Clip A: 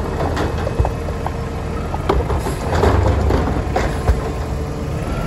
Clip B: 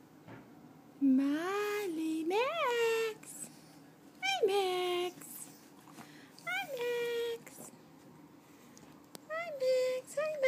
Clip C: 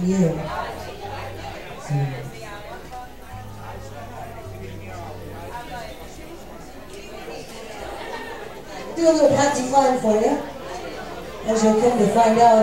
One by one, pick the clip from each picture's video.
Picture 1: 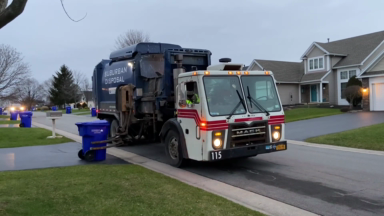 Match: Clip A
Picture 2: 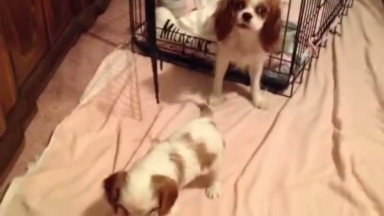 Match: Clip B